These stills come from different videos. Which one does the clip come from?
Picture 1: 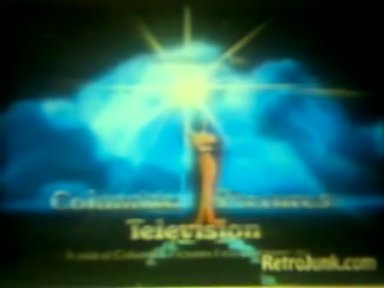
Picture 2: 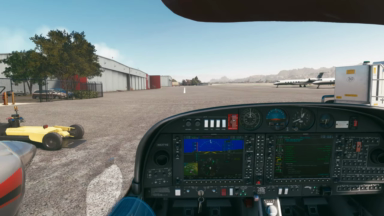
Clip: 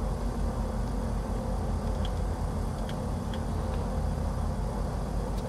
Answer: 2